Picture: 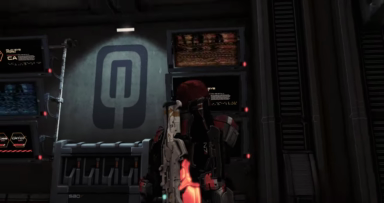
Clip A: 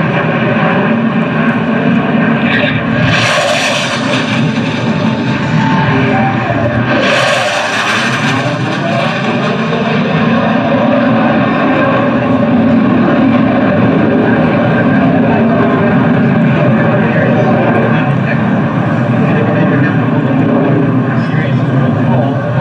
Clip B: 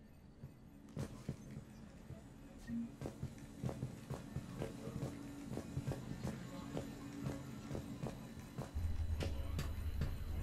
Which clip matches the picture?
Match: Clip B